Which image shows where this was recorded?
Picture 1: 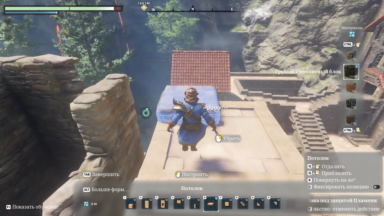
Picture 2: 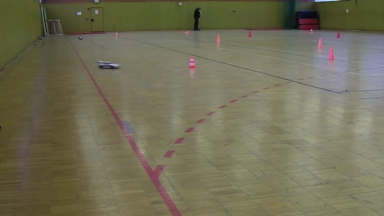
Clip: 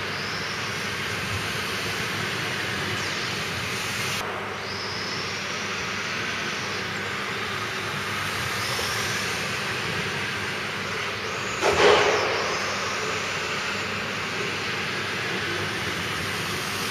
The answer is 2